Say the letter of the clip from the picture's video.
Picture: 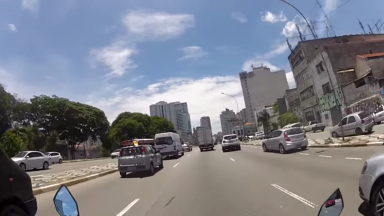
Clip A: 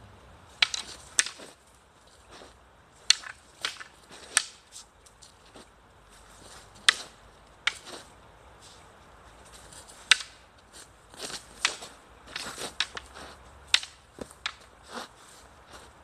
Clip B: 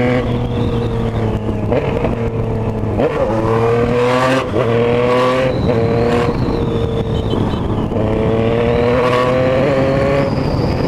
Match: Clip B